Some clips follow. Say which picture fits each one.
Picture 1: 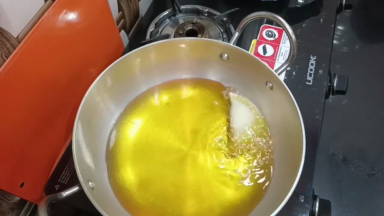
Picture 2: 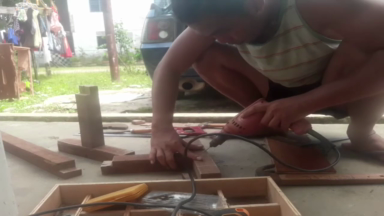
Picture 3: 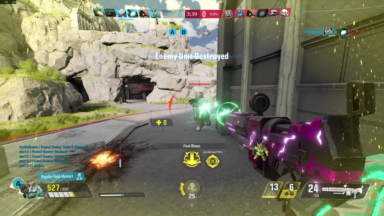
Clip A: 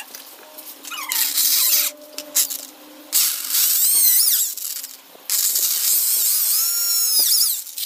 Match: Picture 2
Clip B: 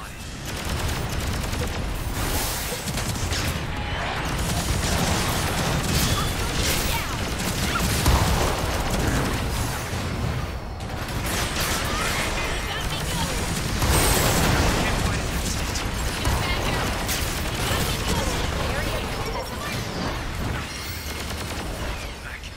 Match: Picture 3